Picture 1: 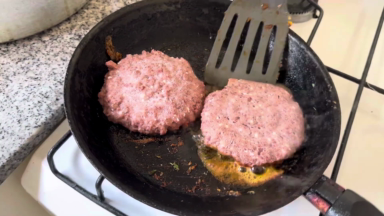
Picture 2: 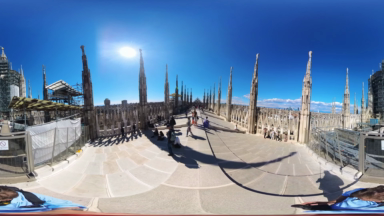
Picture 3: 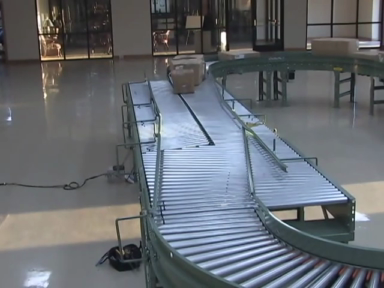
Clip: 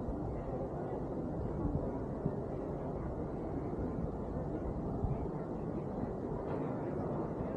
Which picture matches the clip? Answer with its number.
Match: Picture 2